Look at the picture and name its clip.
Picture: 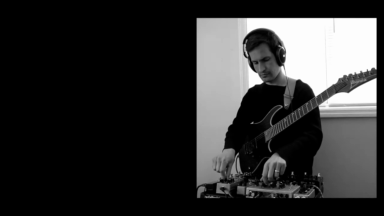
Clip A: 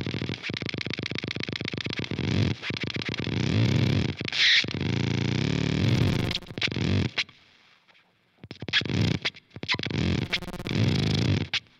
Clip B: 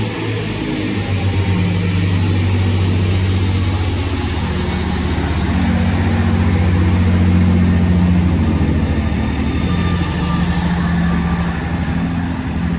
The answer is A